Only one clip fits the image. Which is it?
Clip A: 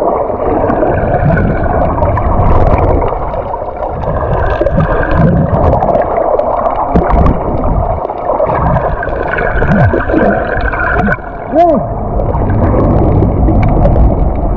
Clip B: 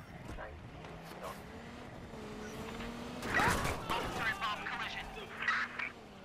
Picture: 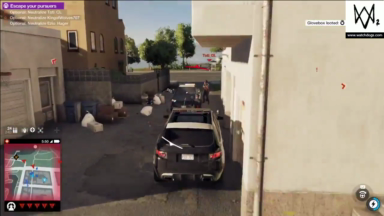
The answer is B